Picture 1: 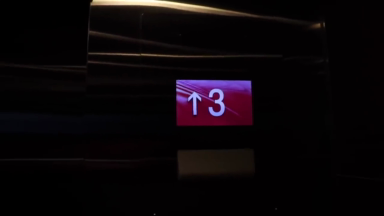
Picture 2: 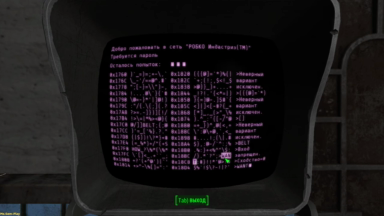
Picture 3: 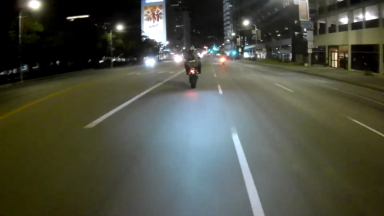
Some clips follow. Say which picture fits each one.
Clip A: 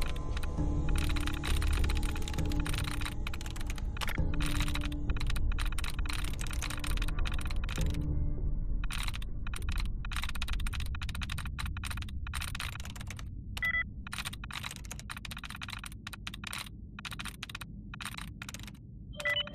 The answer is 2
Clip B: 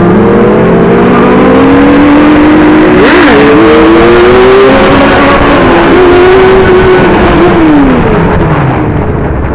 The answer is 3